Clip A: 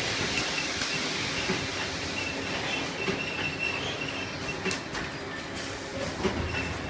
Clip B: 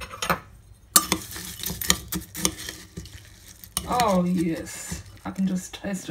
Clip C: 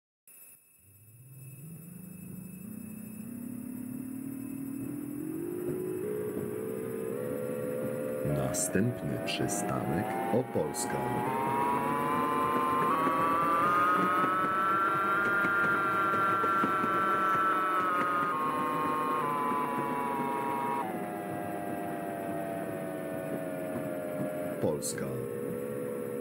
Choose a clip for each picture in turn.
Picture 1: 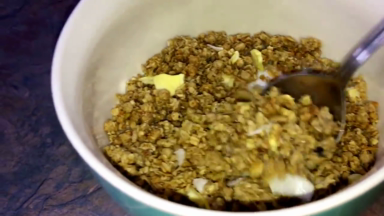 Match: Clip B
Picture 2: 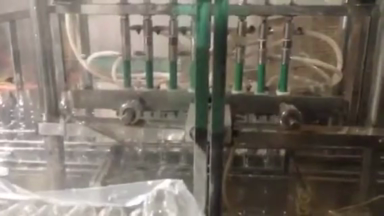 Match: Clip A